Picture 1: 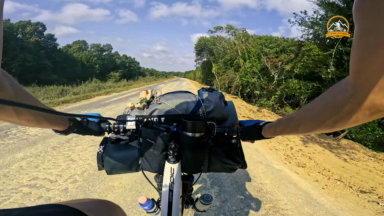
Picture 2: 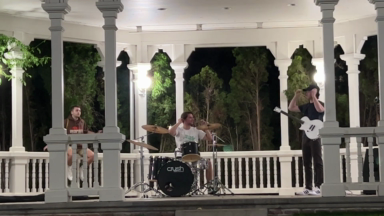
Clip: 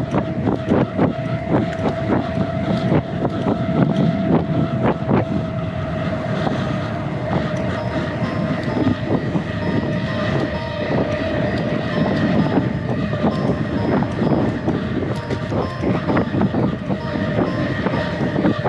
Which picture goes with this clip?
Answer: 1